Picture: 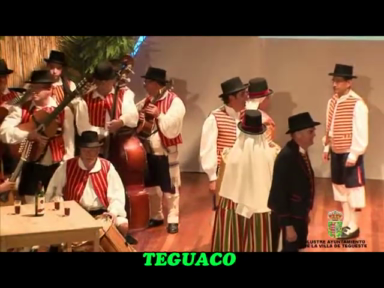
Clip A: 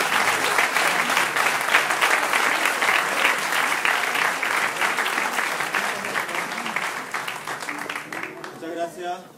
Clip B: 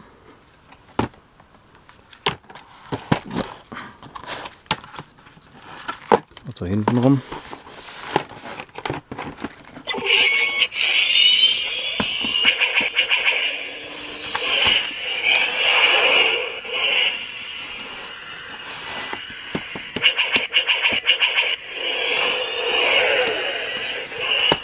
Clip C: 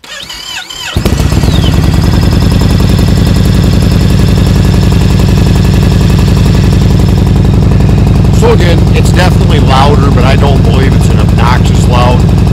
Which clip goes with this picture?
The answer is A